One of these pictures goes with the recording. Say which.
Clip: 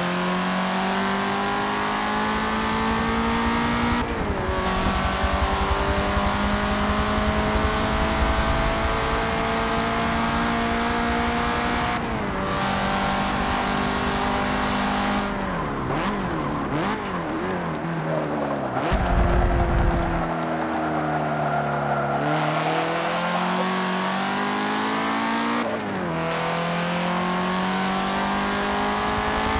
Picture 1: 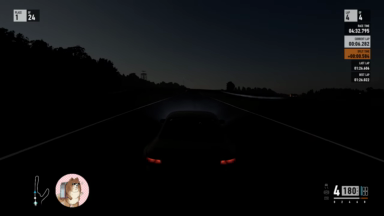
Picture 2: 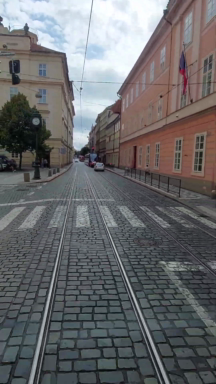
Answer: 1